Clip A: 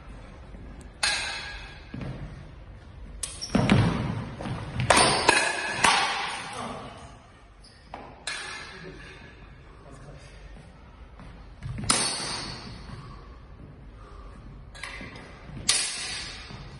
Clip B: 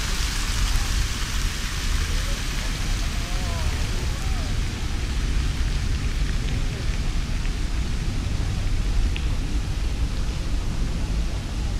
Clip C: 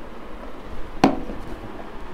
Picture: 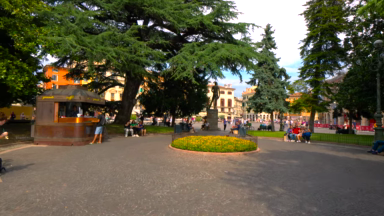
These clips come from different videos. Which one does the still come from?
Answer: B